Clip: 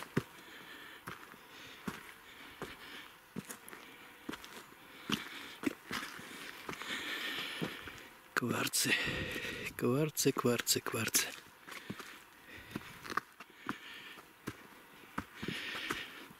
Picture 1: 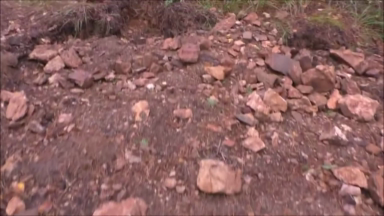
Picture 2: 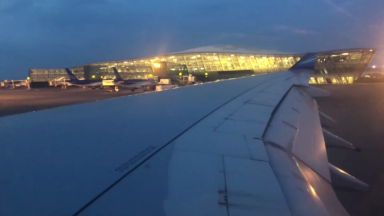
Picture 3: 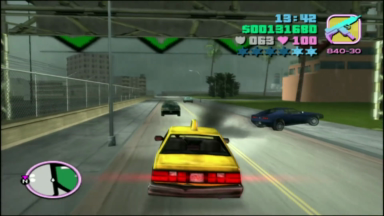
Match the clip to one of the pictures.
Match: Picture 1